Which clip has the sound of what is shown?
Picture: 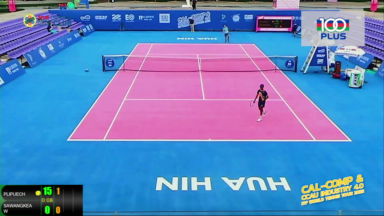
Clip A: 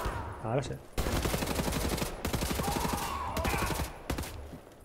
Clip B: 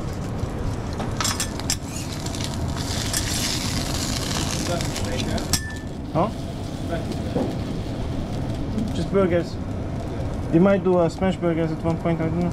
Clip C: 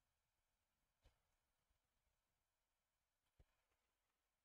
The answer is C